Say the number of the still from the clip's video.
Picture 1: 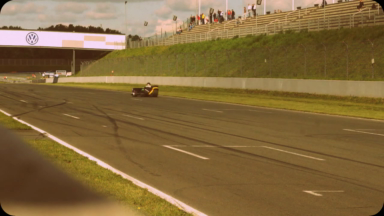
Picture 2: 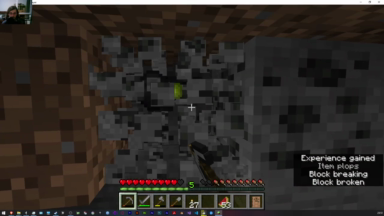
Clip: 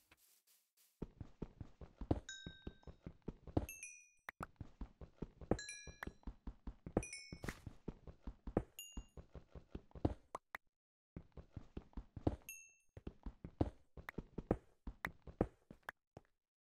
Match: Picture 2